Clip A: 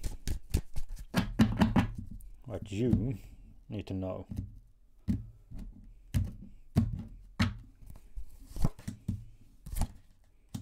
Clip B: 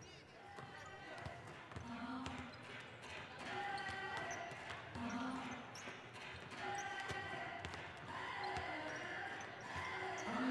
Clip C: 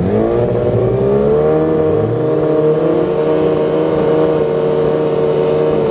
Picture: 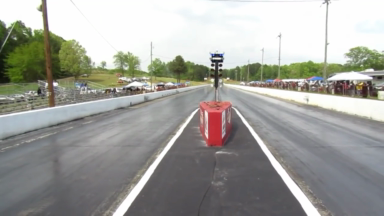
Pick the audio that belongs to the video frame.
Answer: C